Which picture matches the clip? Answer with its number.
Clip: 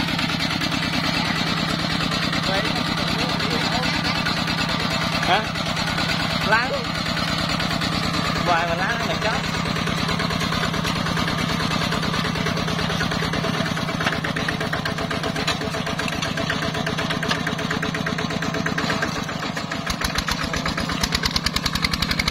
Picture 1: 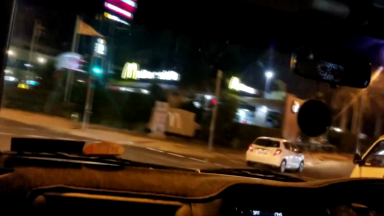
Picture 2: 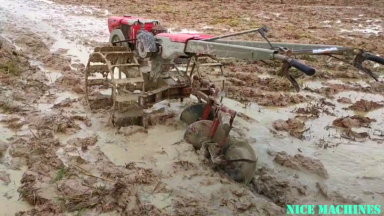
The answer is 2